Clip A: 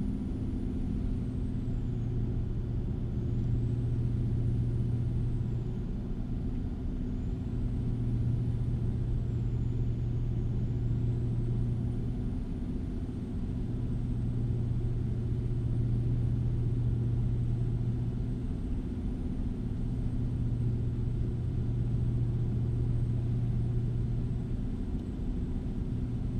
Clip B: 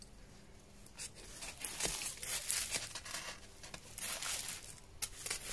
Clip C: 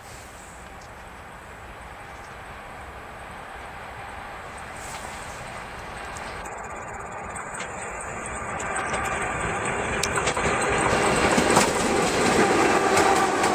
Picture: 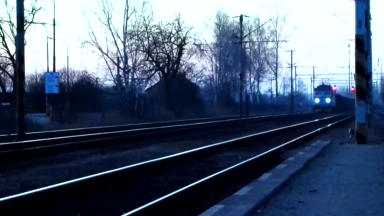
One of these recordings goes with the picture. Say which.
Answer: C